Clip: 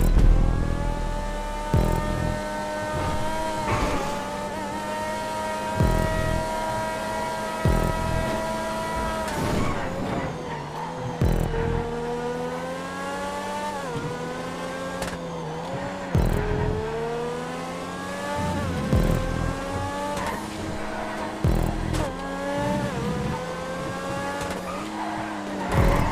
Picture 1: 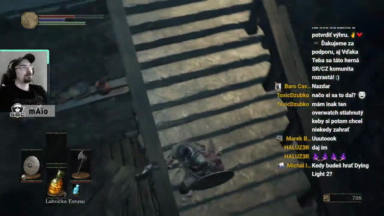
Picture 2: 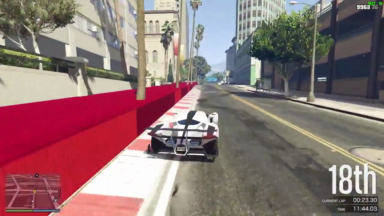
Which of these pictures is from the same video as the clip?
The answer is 2